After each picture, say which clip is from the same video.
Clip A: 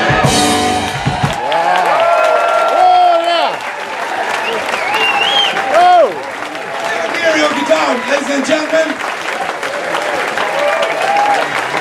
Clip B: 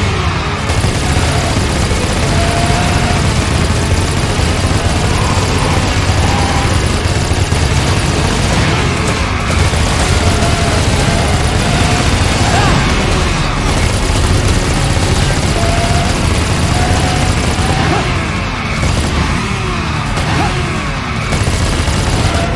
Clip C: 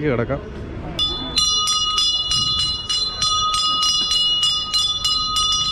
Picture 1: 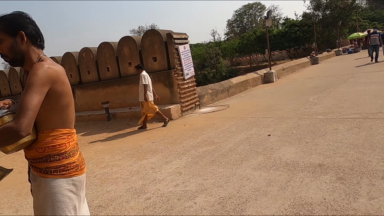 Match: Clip C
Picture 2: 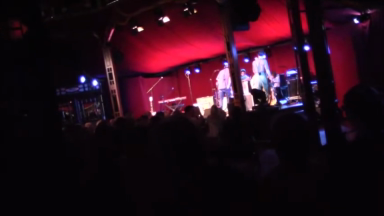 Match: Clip A